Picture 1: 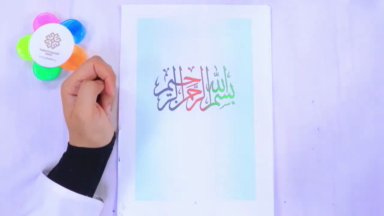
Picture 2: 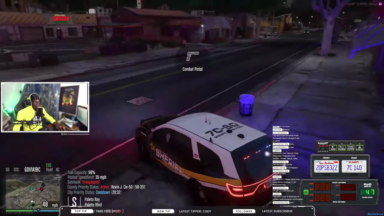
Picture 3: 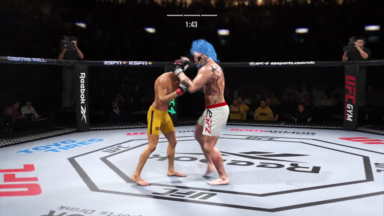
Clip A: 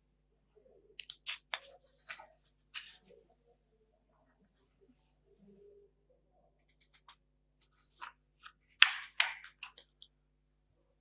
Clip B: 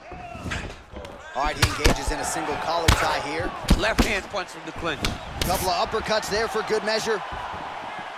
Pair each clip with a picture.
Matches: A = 1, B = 3